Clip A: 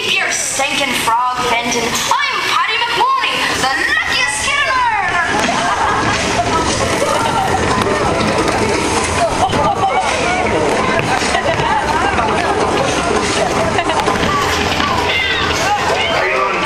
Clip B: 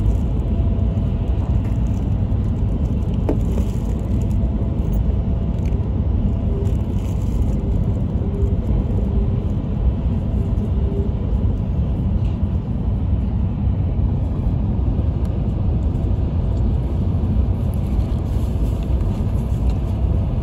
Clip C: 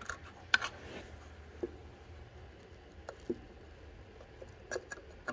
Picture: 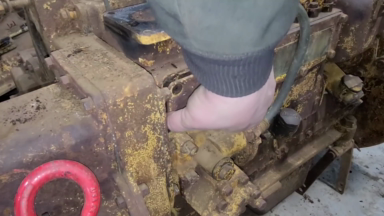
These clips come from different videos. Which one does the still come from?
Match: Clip C